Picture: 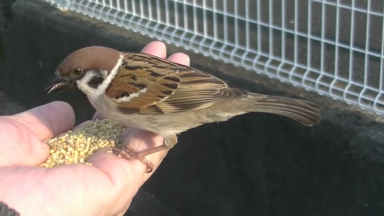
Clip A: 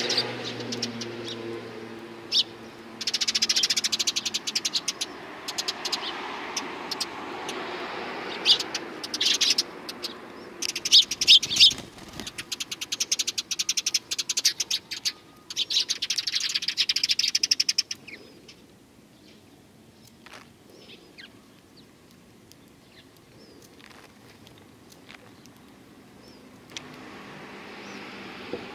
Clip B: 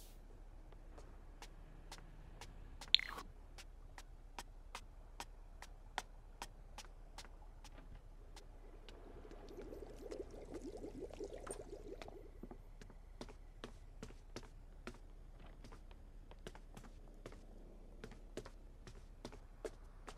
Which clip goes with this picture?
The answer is A